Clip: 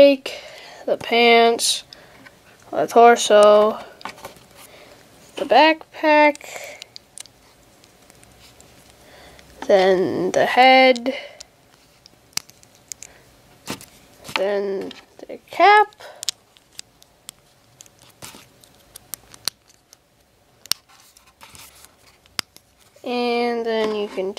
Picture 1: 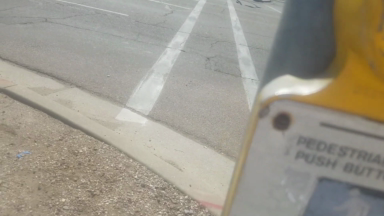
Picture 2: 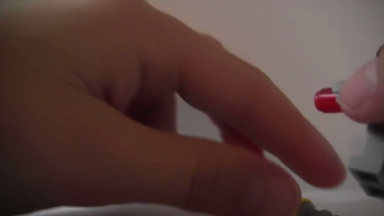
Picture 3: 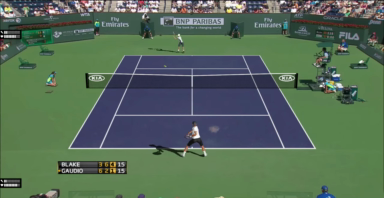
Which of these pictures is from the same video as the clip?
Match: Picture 2